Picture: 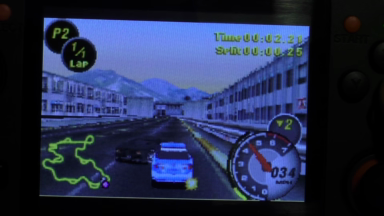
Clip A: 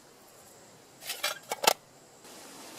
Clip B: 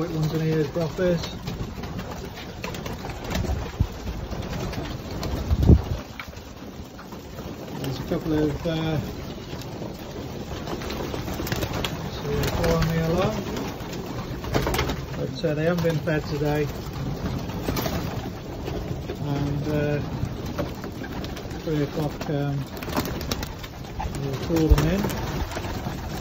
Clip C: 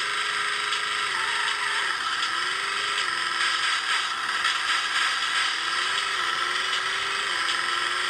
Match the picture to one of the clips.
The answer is C